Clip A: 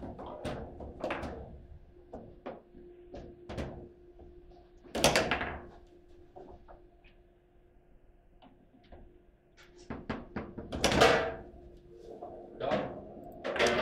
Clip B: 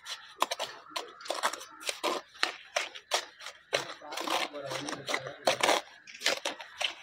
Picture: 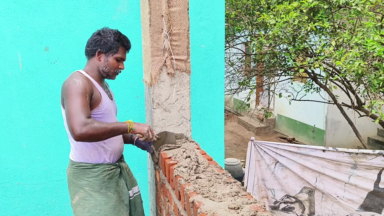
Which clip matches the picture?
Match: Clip B